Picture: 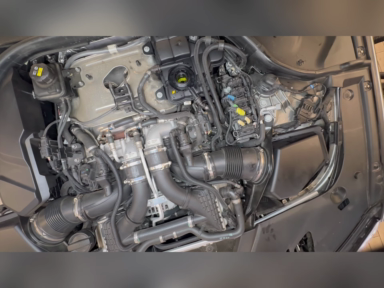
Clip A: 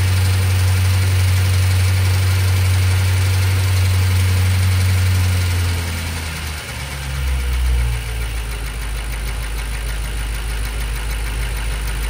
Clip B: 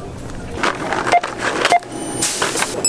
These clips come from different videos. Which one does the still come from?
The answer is A